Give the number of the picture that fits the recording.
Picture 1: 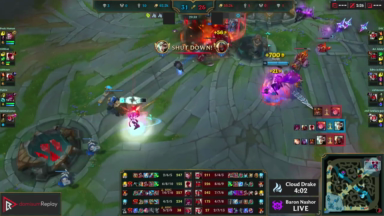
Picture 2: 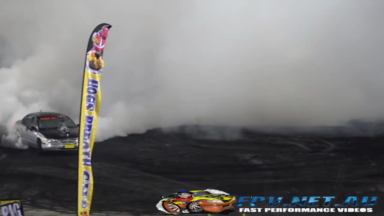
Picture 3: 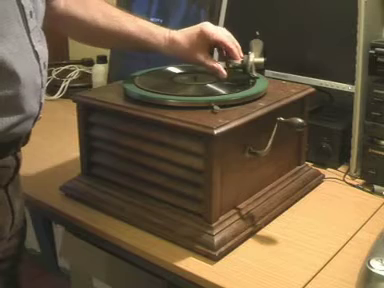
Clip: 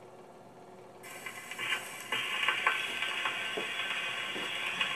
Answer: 3